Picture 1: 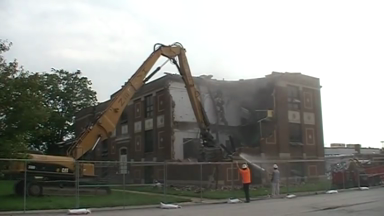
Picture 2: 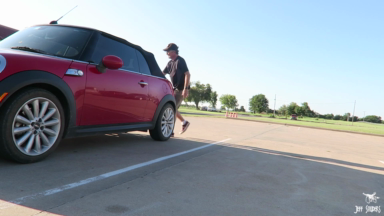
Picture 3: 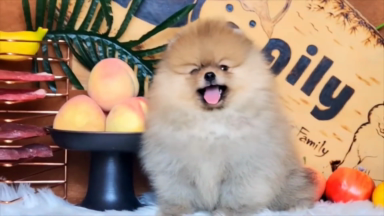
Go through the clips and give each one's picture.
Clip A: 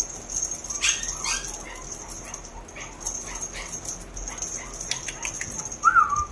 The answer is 3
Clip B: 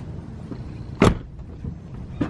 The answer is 2